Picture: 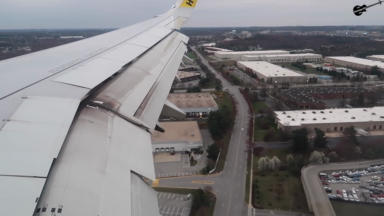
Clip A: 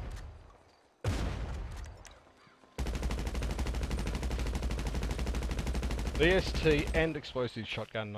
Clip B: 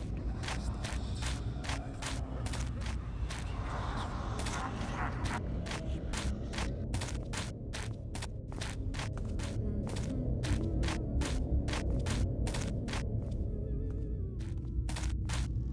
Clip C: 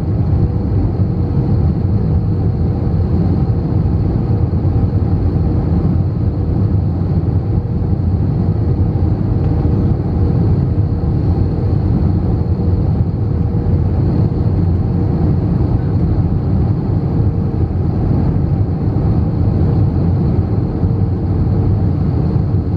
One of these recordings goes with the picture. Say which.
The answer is C